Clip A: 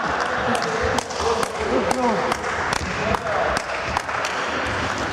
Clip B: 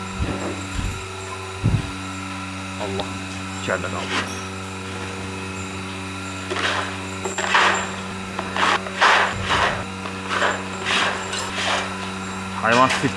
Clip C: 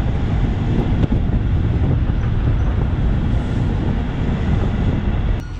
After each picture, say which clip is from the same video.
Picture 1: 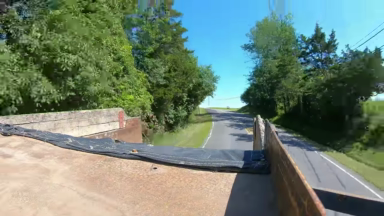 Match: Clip C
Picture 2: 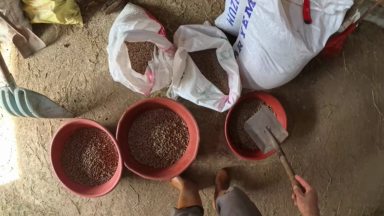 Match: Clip B